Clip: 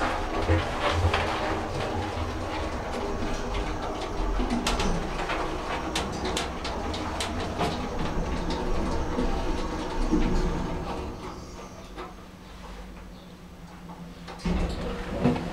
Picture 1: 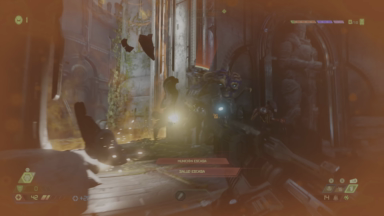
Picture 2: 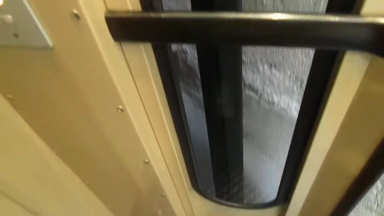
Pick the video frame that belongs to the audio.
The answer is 2